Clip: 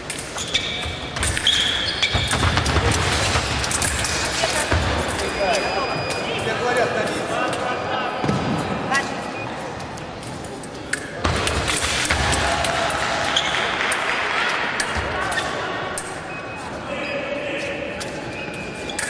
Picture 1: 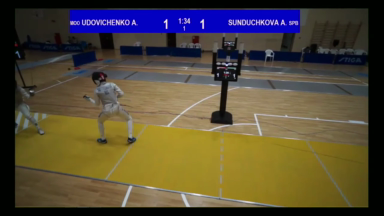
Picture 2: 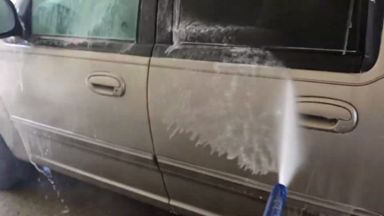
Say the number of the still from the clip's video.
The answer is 1